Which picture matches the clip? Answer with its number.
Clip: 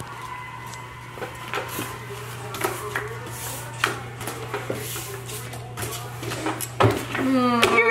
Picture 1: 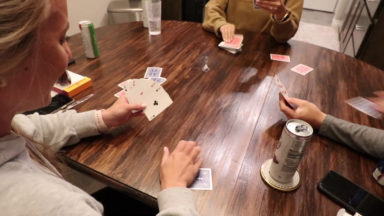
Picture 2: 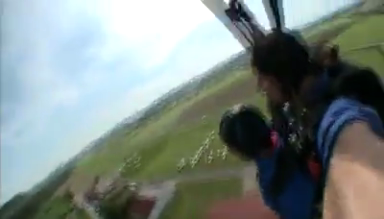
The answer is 1